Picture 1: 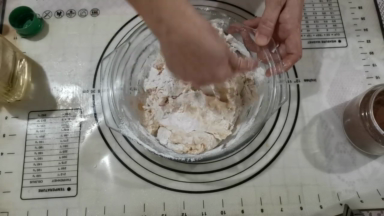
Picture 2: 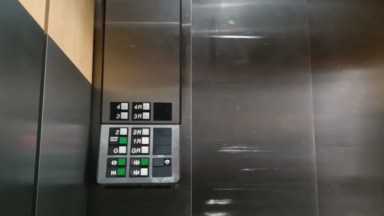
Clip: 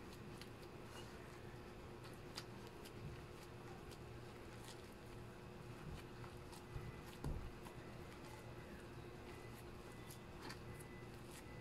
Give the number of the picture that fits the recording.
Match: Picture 1